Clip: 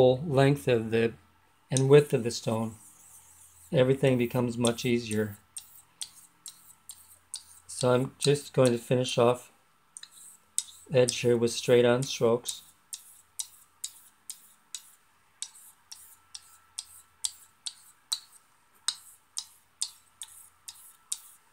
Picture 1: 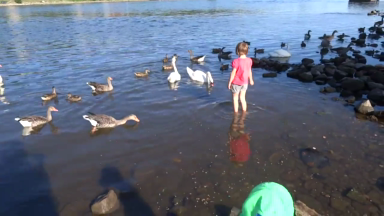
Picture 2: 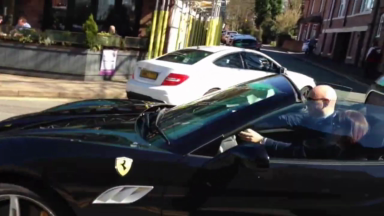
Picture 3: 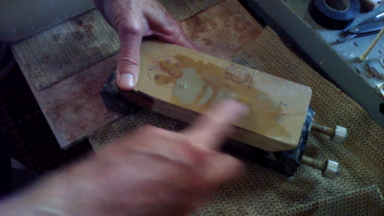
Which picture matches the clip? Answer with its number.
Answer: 3